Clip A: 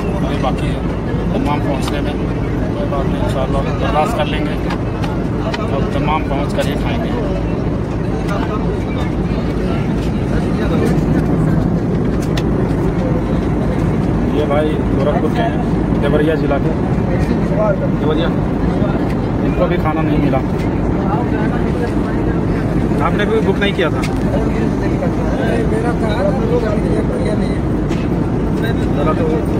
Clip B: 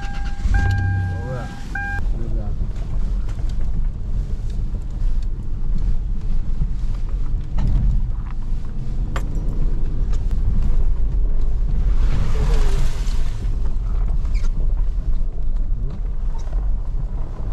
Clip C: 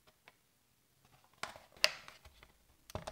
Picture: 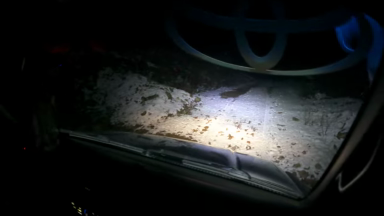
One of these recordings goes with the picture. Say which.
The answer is B